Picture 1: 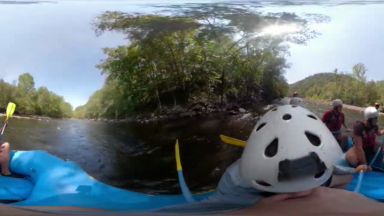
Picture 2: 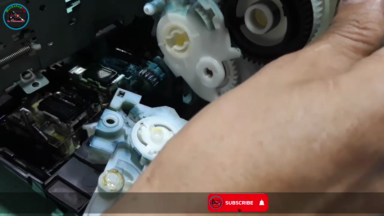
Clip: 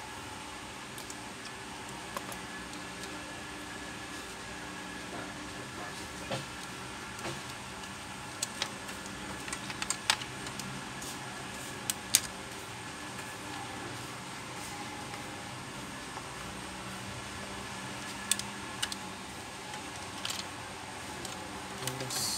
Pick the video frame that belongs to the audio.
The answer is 2